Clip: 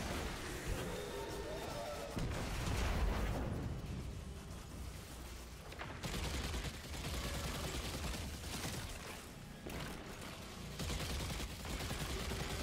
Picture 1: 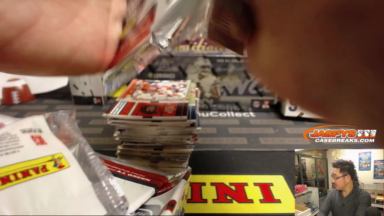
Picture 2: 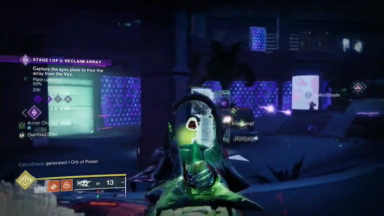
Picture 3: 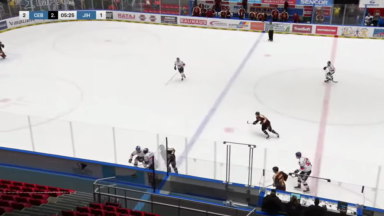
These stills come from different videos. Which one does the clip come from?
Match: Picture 2